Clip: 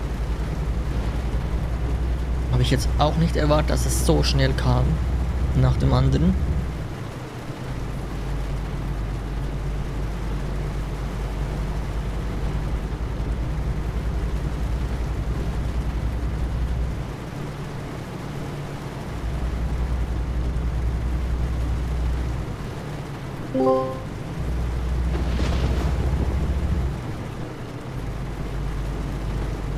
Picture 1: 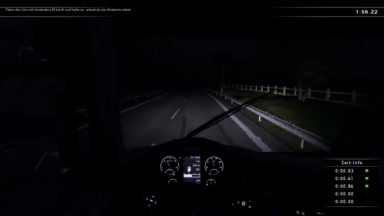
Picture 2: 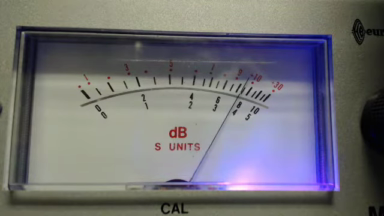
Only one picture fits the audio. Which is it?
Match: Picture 1